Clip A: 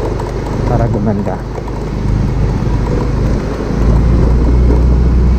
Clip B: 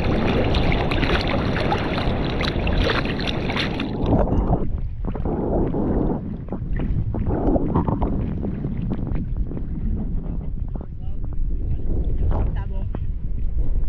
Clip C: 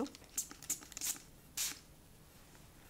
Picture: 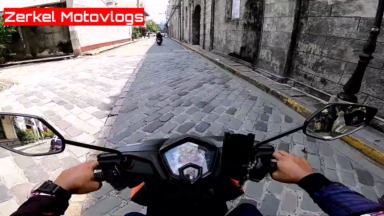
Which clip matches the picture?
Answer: A